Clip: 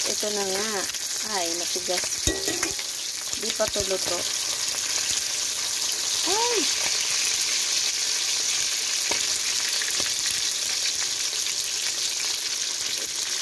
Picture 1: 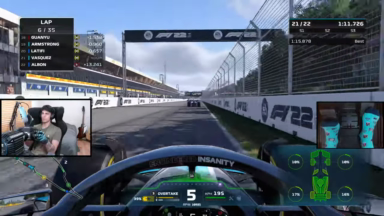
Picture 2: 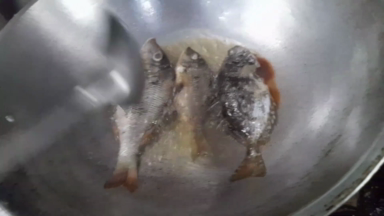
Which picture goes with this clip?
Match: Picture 2